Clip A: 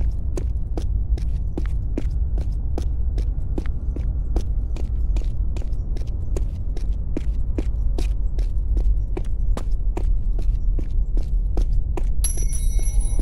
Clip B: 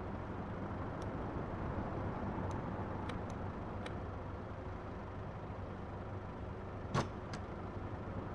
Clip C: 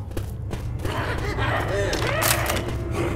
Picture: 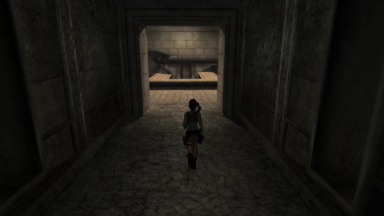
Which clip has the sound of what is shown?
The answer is A